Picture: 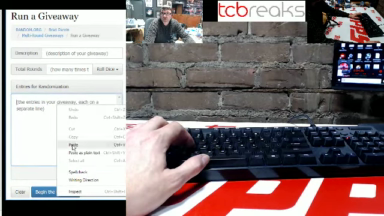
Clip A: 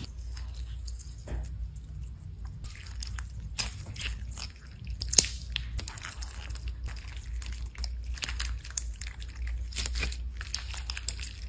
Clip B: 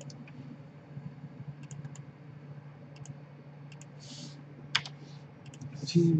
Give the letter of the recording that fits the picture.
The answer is B